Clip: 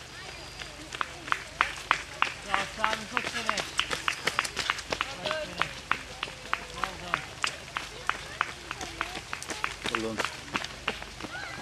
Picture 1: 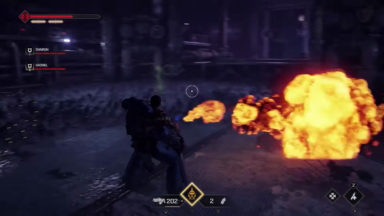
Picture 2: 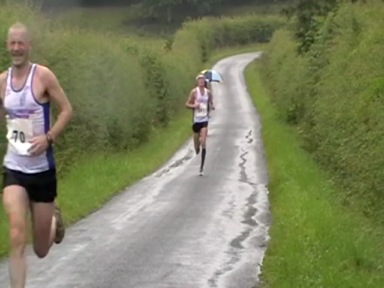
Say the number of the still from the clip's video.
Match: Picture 2